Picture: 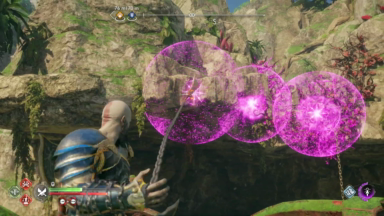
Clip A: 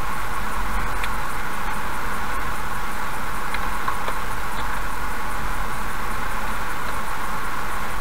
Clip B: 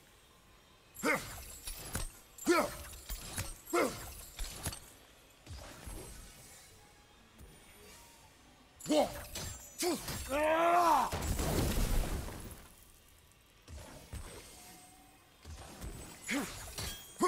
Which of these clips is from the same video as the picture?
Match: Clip B